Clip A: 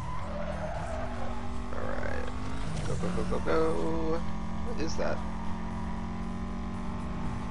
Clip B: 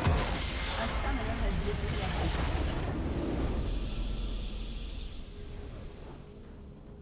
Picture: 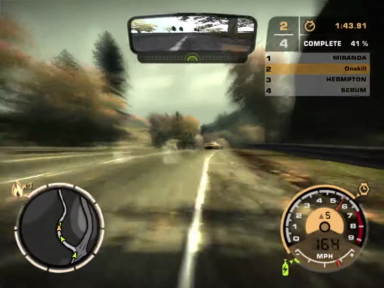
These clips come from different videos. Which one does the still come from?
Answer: A